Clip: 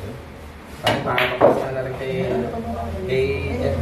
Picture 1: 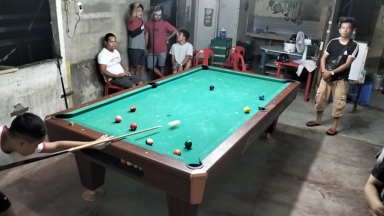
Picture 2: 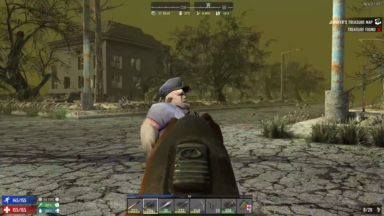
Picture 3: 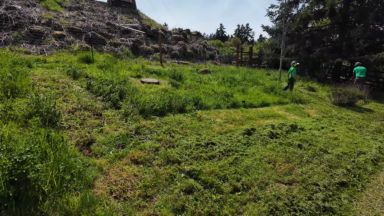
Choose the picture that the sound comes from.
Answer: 1